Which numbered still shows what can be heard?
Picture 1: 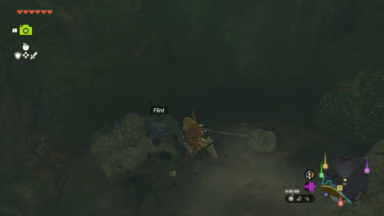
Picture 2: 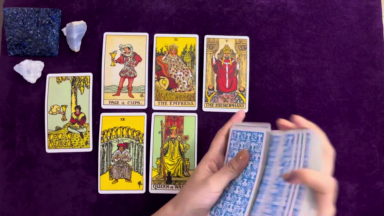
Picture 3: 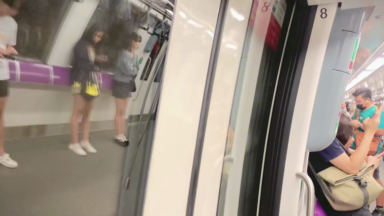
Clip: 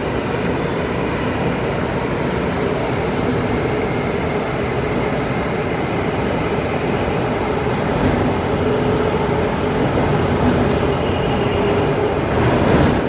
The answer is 3